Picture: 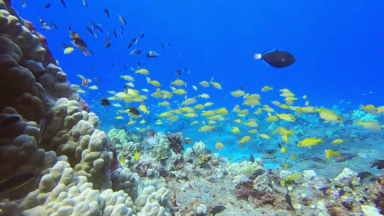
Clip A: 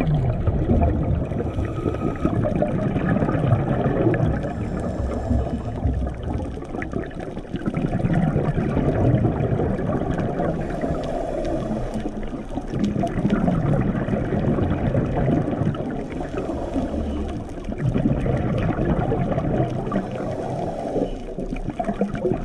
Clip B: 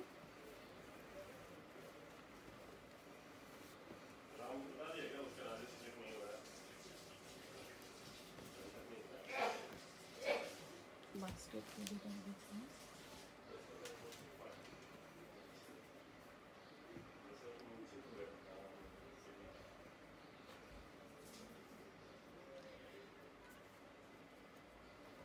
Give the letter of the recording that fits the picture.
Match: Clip A